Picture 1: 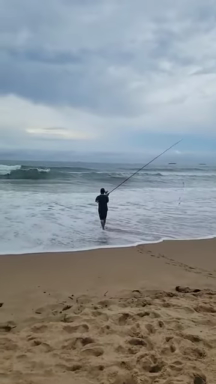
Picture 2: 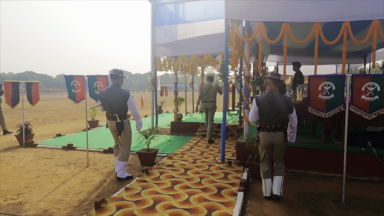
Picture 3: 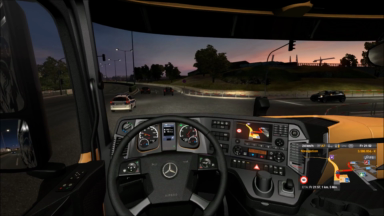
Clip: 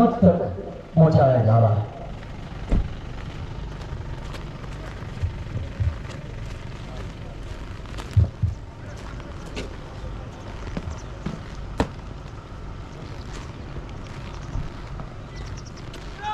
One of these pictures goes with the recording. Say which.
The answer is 2